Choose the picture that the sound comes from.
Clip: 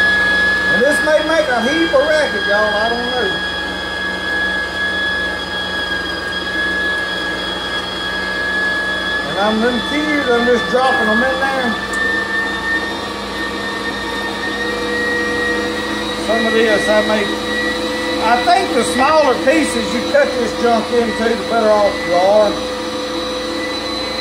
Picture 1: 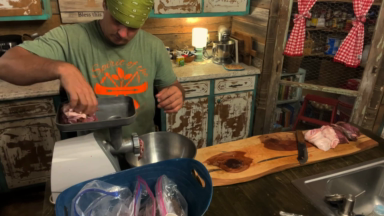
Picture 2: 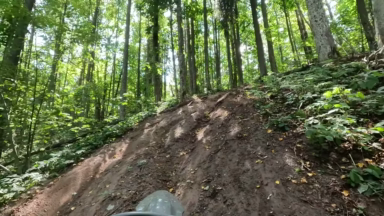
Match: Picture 1